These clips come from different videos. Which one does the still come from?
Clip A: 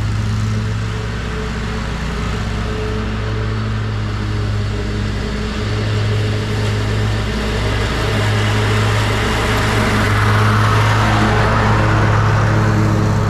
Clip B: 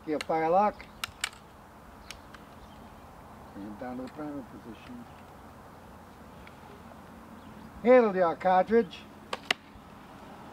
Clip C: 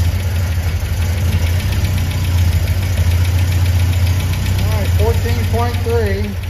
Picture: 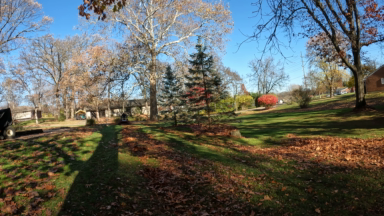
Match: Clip A